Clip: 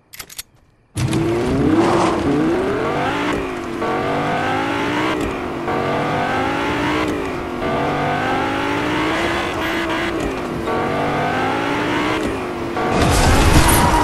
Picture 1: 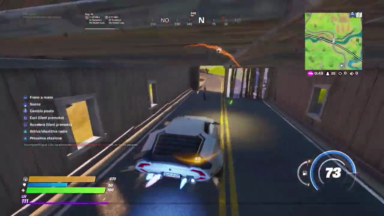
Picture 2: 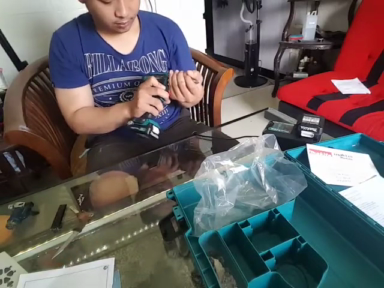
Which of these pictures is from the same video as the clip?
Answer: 1